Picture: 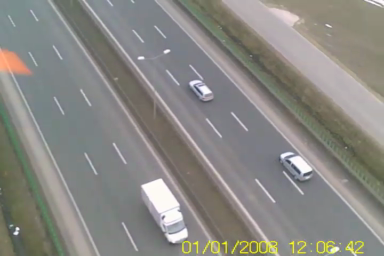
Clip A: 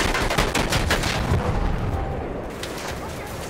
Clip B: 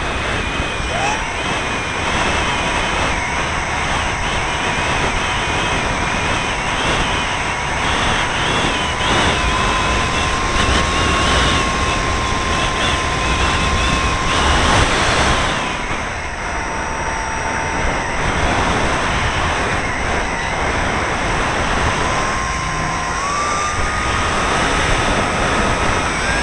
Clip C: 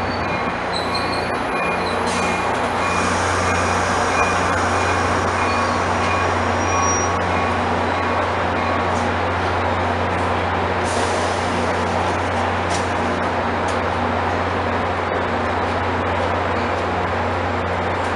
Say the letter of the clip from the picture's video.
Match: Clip B